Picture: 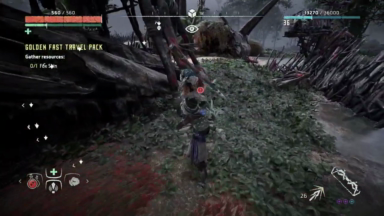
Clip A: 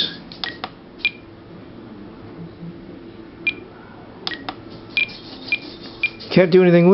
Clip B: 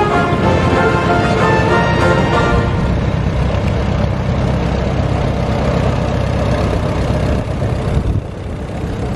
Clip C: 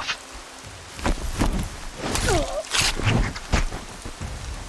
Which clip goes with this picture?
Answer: C